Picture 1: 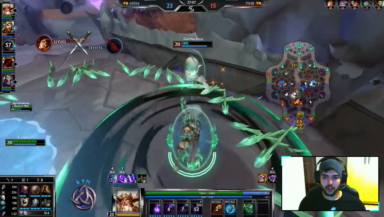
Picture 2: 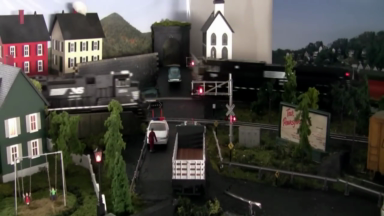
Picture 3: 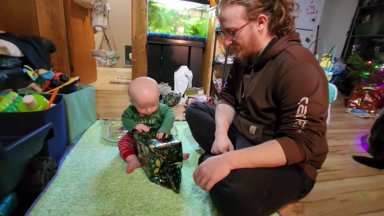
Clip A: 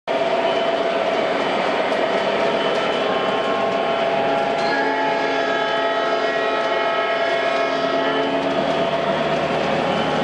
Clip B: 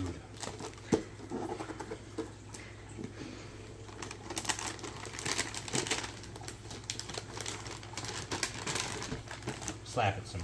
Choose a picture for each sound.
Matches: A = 2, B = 3